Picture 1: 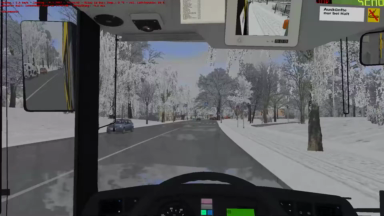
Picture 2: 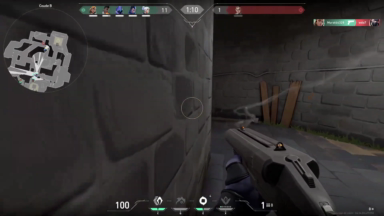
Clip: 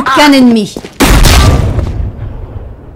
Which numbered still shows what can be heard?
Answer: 2